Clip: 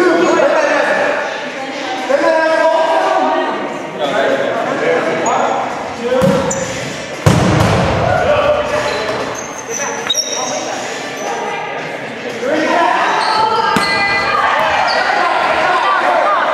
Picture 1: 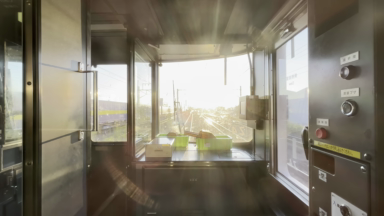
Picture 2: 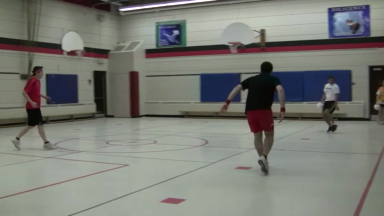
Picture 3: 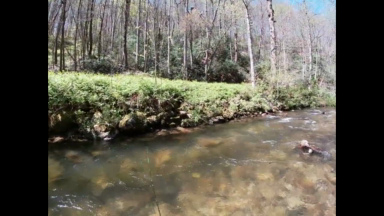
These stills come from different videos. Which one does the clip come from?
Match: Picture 2